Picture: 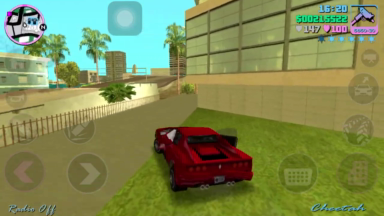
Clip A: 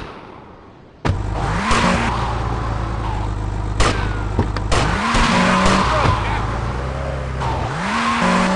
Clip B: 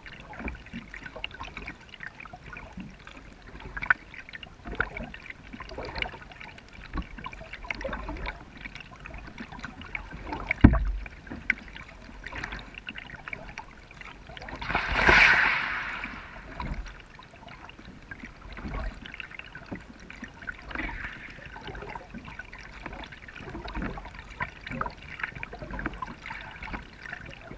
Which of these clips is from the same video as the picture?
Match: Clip A